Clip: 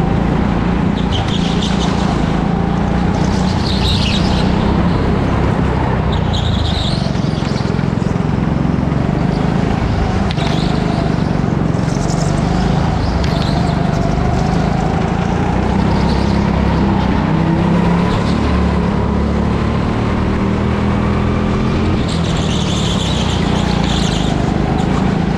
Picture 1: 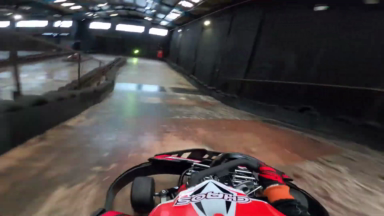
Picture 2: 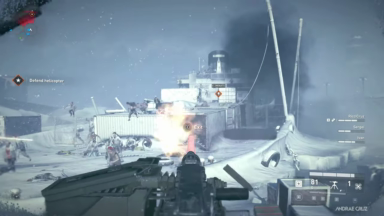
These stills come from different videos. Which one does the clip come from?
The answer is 1